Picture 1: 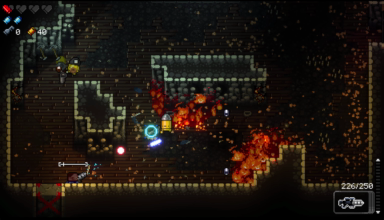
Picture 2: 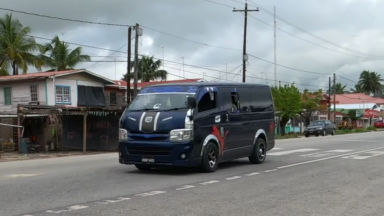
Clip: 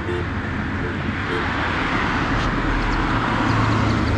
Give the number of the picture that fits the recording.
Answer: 2